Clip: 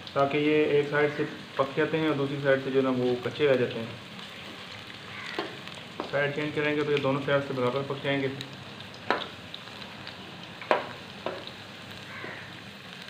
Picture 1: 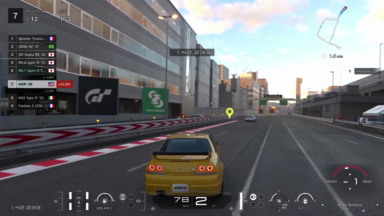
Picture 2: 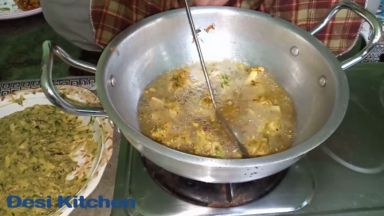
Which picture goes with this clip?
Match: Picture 2